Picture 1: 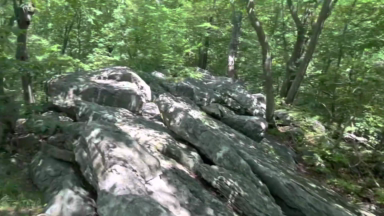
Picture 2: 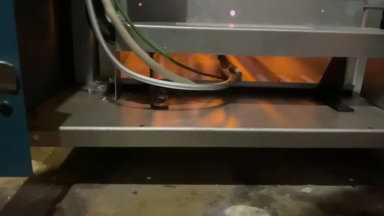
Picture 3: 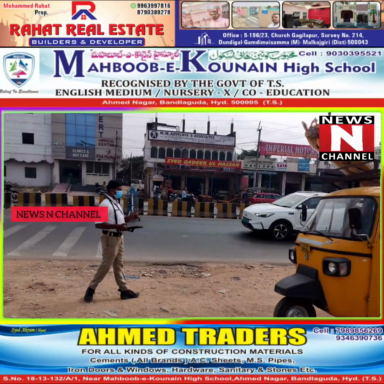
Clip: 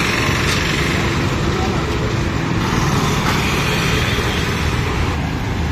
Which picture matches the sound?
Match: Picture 3